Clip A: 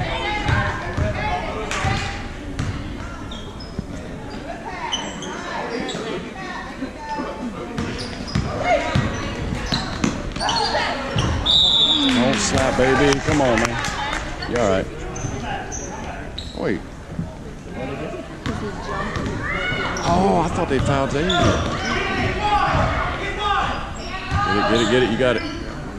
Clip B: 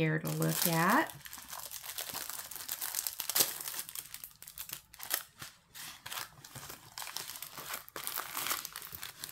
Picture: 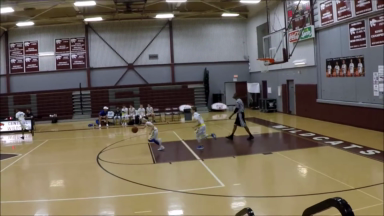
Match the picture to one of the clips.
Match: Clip A